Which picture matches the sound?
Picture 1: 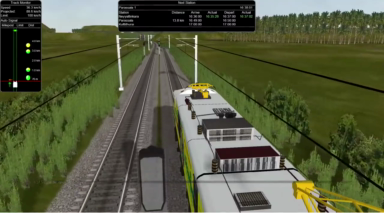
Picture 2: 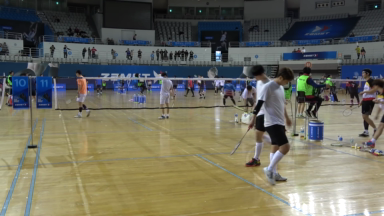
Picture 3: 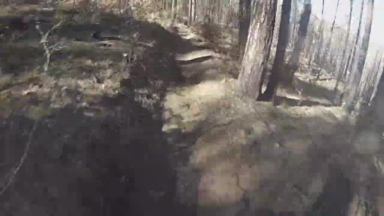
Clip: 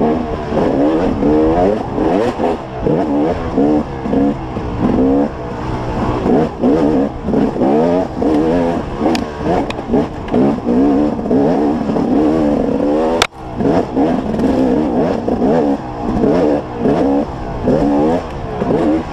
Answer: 3